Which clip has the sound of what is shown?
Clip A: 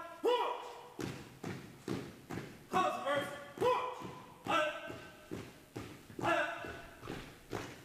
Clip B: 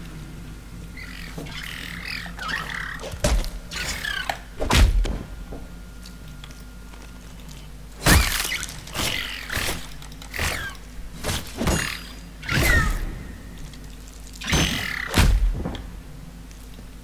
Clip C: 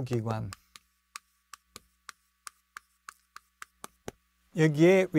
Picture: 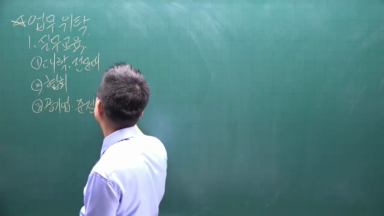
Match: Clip C